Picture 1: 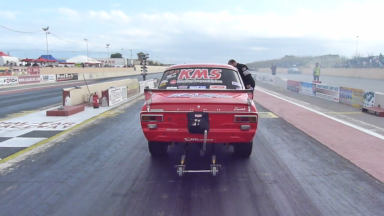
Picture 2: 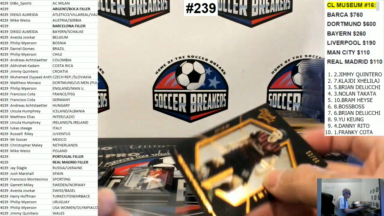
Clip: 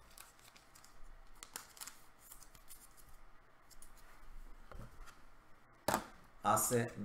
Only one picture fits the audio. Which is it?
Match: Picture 2